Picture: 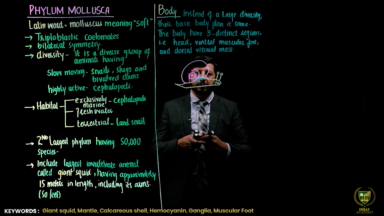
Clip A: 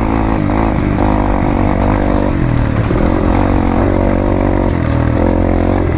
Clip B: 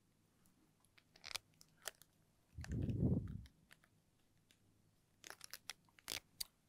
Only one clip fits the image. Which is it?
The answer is B